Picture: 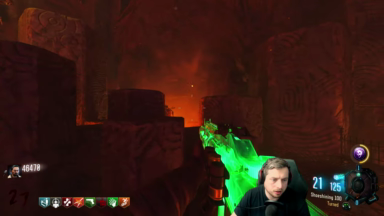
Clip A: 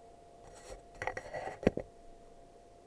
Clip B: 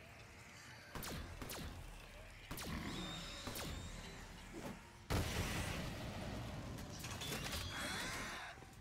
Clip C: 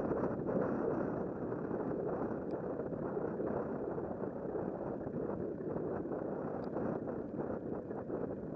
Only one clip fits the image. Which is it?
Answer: B